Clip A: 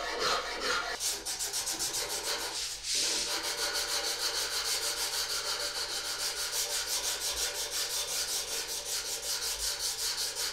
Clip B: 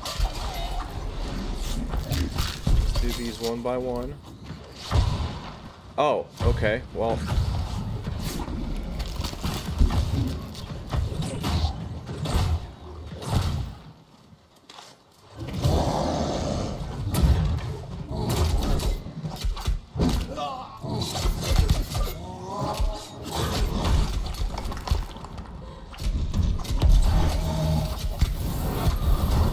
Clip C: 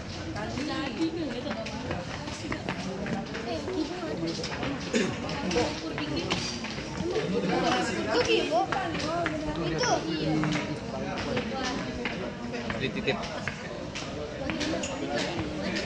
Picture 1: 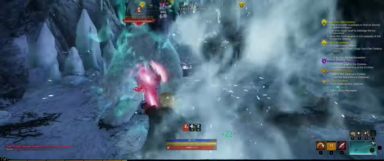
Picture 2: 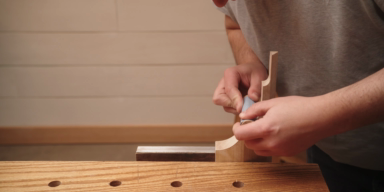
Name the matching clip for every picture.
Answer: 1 B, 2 A